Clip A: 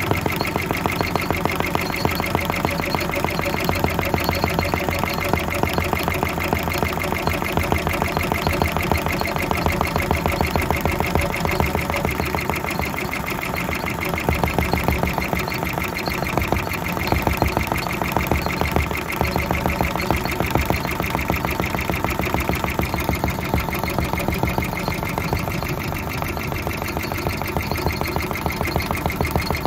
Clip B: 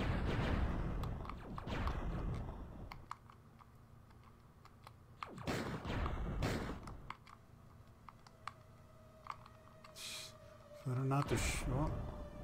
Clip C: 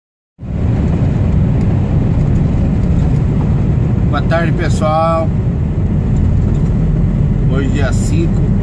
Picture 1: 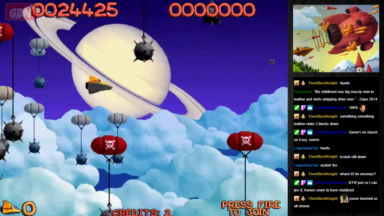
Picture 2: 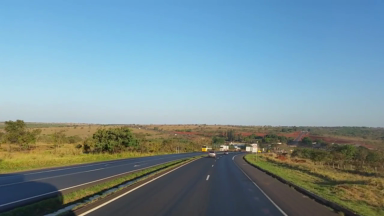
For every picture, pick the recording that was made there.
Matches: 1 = B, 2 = C